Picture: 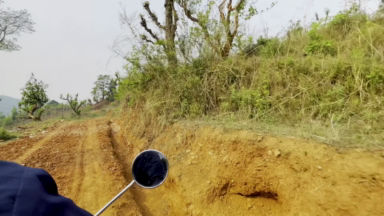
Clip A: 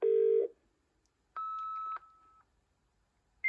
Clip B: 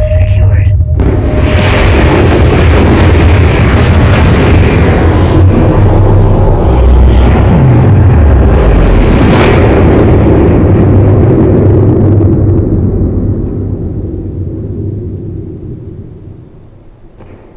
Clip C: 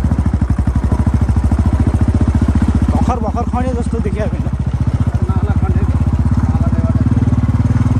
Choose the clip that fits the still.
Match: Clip C